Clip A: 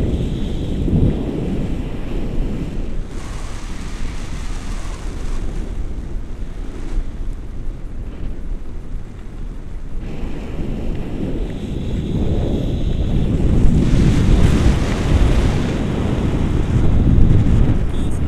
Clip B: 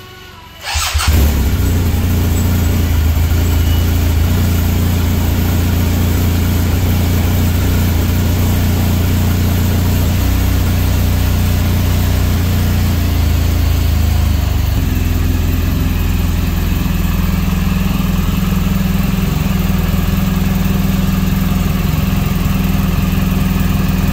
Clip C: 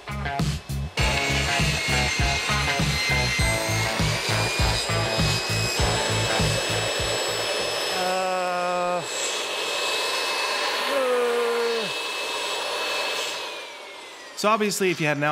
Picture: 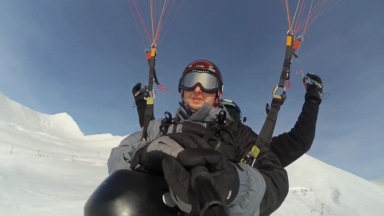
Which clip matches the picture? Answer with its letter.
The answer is A